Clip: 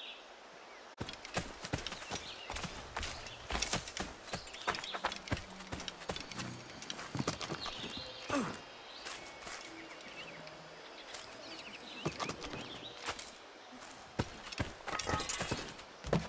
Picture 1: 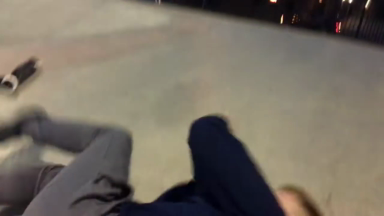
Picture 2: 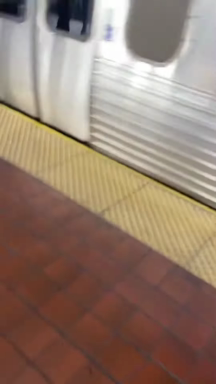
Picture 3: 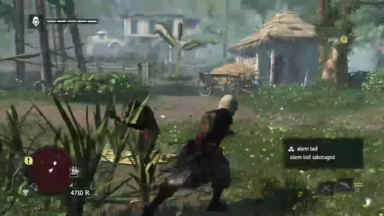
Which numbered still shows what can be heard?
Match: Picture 3